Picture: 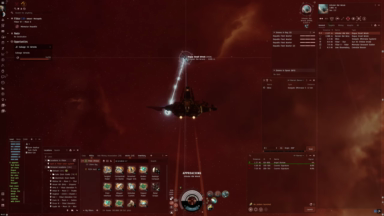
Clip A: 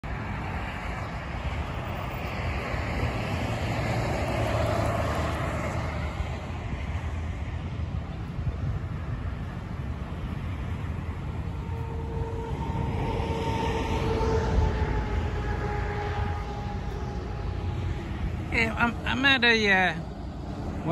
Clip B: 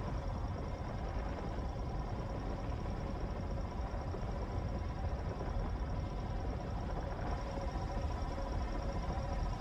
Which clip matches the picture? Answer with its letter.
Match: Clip B